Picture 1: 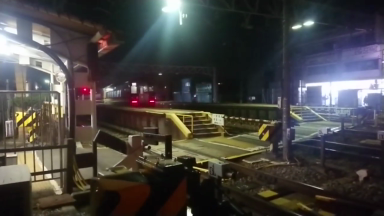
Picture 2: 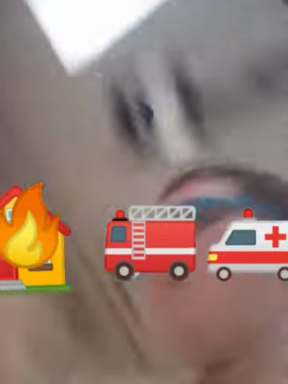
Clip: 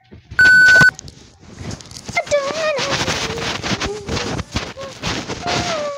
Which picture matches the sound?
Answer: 2